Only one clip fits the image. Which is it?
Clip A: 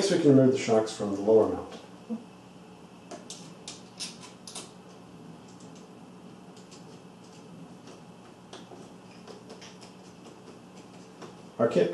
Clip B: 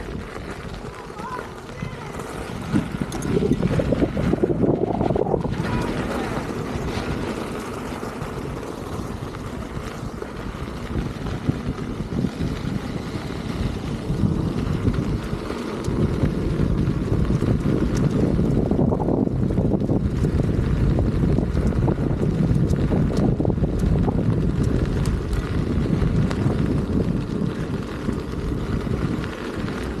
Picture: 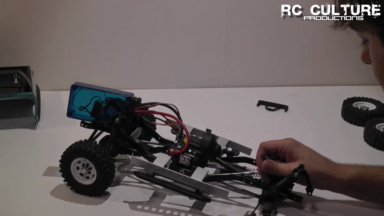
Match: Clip A